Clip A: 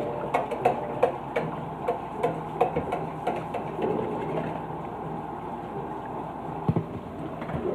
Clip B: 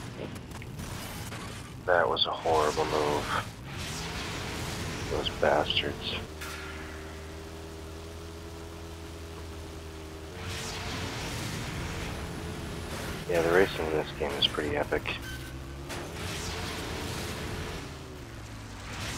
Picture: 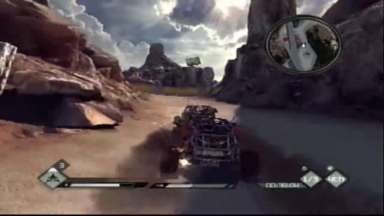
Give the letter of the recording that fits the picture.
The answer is B